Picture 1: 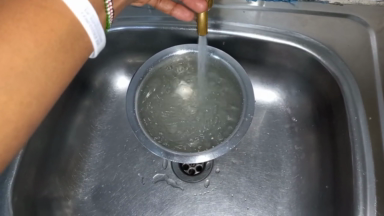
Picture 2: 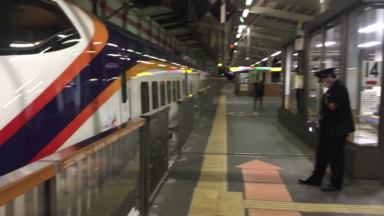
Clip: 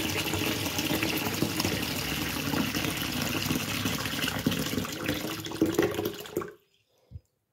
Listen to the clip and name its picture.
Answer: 1